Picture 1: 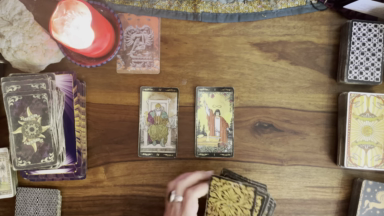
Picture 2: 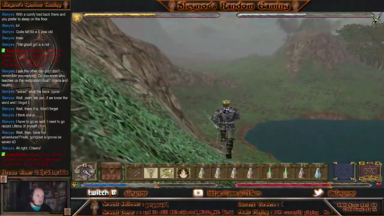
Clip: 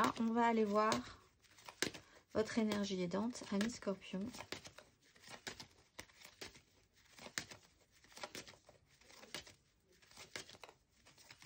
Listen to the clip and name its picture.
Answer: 1